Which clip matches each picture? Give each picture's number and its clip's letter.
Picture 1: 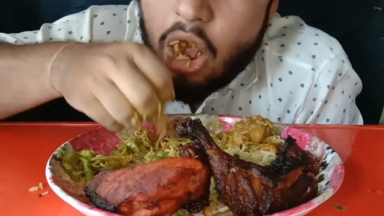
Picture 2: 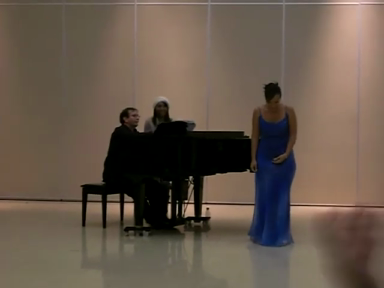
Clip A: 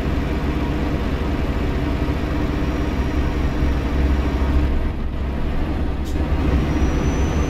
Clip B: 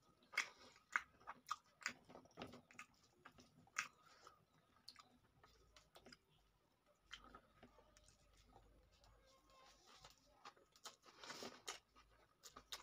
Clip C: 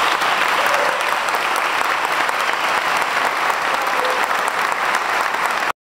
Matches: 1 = B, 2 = C